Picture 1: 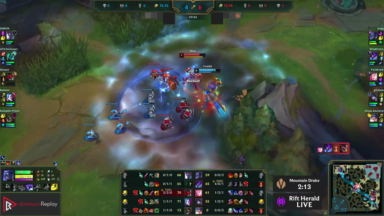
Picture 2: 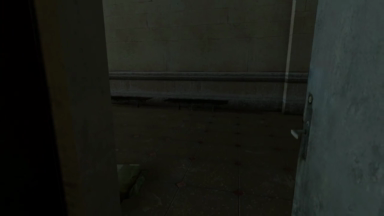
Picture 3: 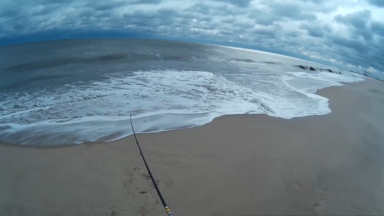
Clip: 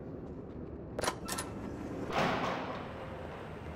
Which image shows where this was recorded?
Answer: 2